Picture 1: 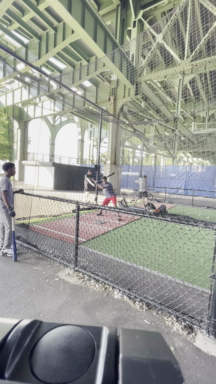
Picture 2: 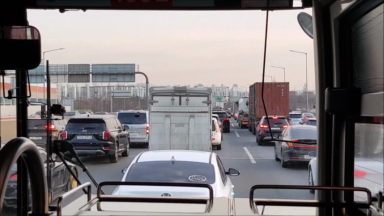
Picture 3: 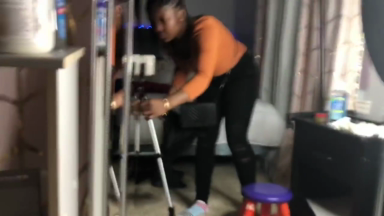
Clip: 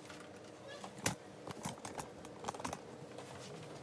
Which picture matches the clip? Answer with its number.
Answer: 3